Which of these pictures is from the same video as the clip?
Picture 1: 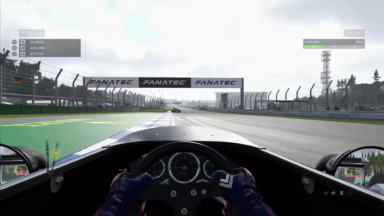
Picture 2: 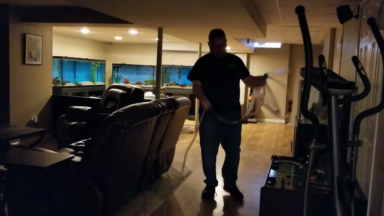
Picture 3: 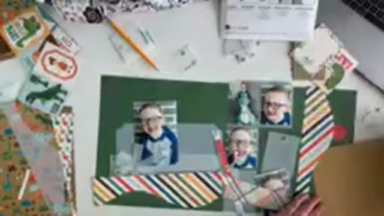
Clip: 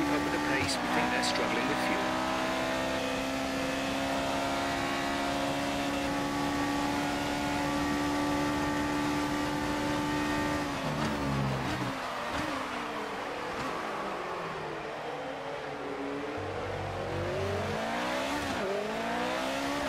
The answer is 1